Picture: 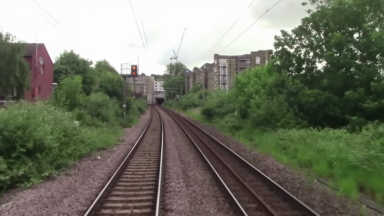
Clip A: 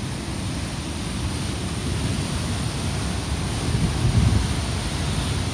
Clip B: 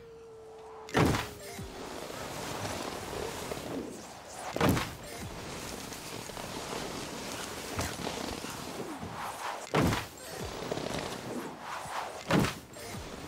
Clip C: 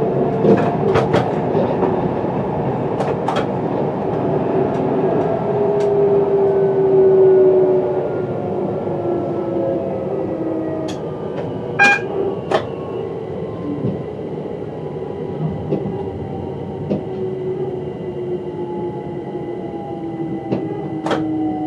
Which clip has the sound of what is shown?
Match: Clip C